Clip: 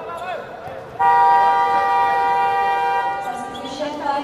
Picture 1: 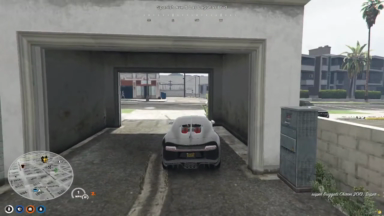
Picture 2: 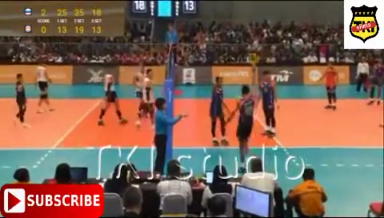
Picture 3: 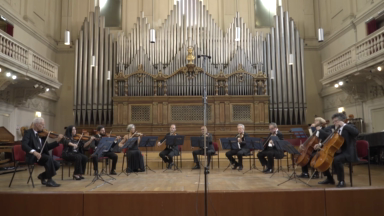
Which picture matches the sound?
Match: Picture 2